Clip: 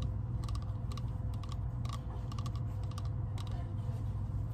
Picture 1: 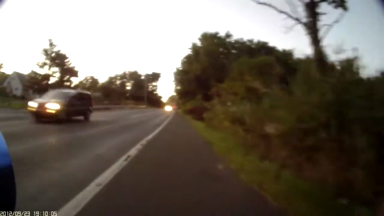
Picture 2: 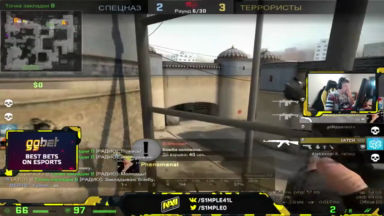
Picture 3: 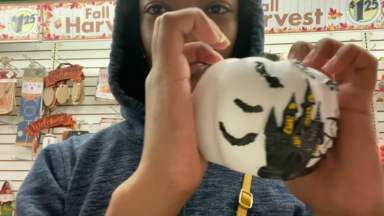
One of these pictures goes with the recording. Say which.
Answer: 3